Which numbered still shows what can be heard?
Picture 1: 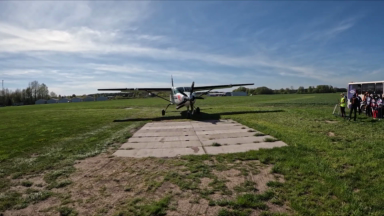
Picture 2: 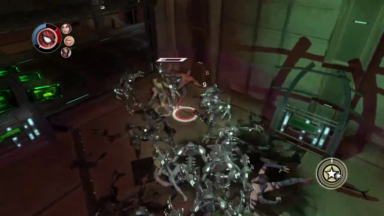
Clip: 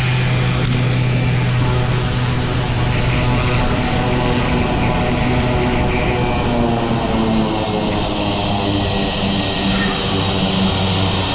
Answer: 1